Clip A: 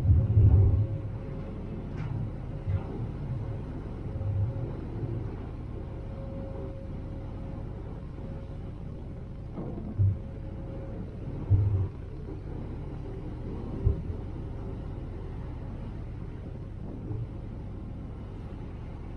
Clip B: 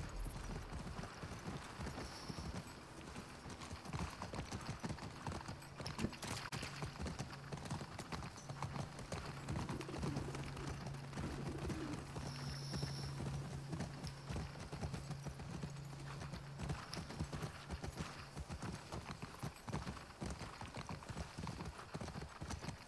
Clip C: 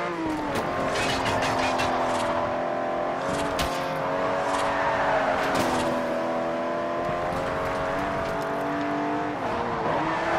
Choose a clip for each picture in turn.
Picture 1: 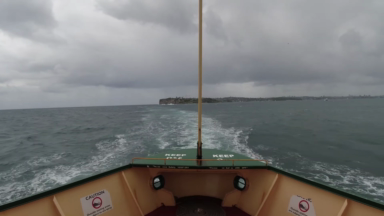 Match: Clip A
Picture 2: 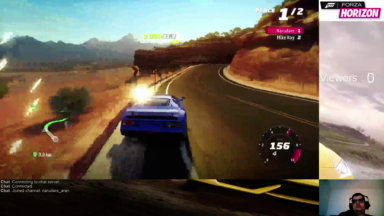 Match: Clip C